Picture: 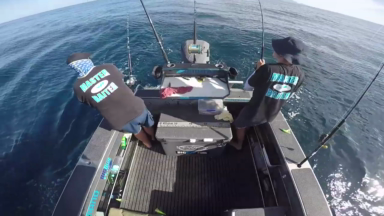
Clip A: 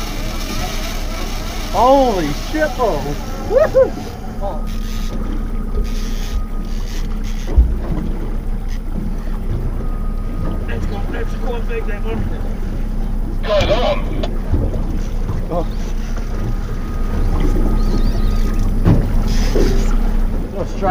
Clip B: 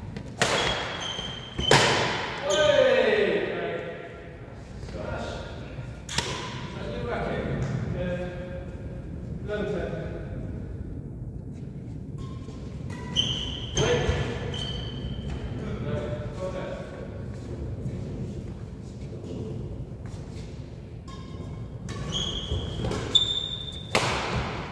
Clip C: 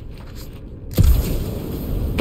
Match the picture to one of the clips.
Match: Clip A